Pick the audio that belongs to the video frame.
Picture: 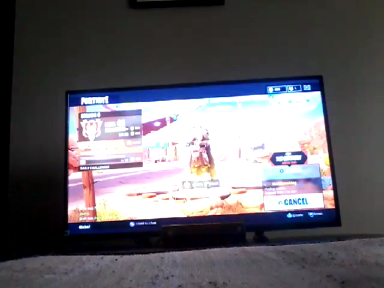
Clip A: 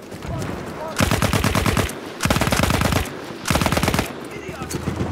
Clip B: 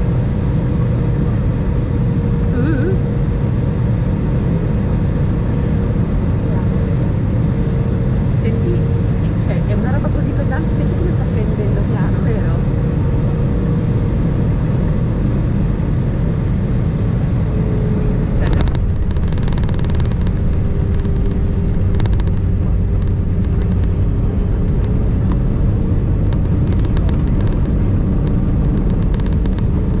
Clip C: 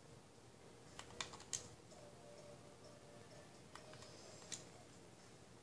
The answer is C